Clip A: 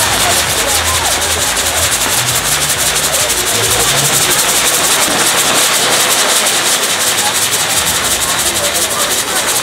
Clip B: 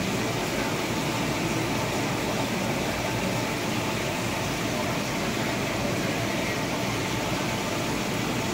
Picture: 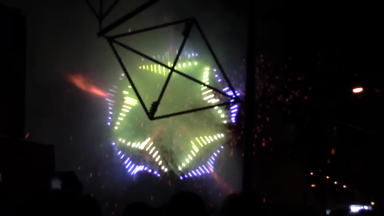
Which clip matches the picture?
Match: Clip A